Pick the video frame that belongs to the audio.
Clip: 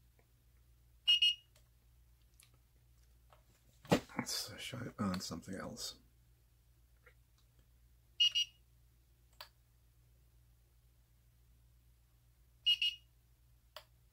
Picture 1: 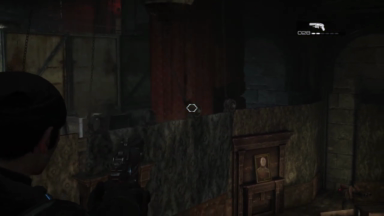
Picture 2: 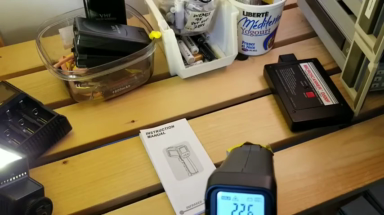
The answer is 2